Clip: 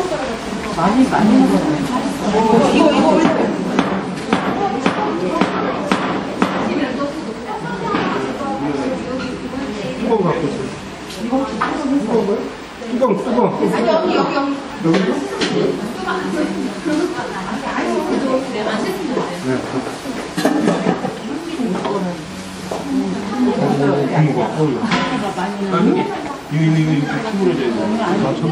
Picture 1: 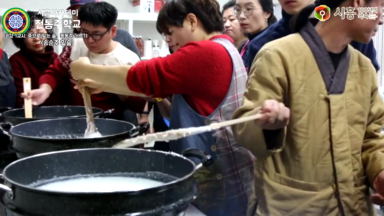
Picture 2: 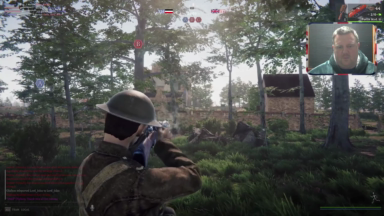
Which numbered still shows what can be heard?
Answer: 1